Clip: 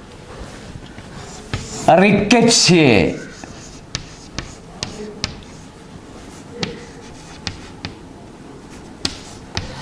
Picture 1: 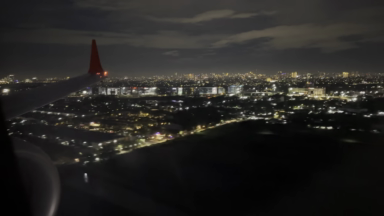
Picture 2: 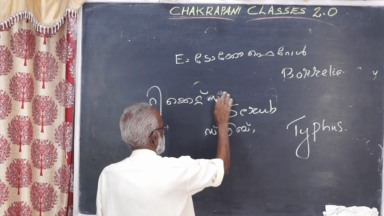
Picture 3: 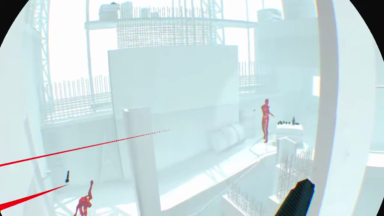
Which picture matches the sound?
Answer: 2